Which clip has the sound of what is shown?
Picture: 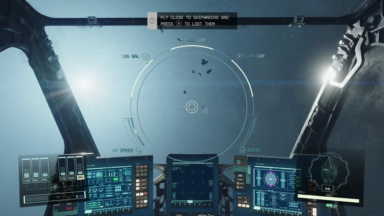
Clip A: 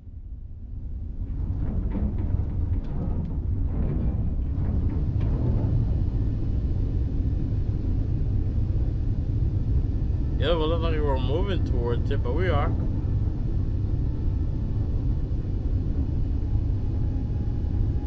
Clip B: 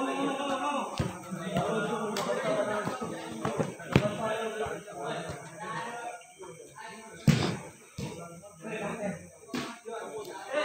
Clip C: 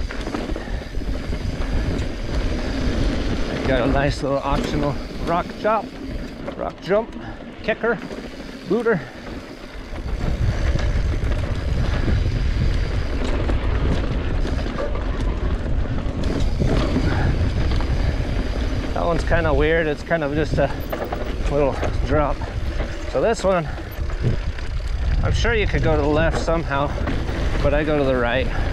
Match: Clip A